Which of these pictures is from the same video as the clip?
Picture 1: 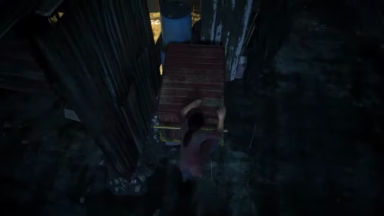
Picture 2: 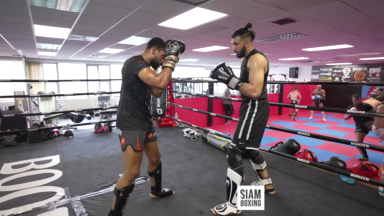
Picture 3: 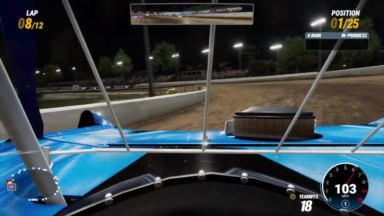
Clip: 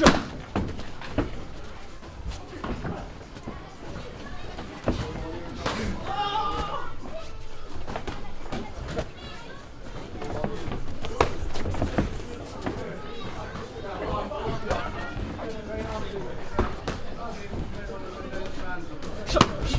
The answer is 2